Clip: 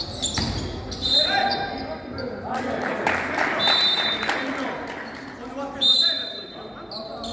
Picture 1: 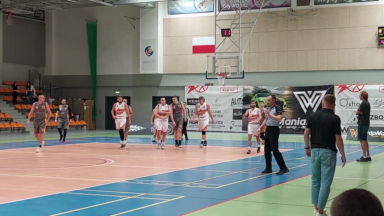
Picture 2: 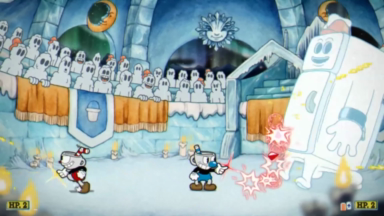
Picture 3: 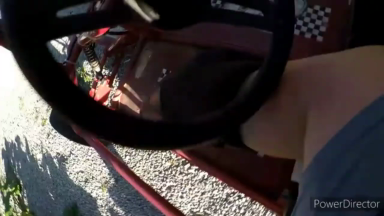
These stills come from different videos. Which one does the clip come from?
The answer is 1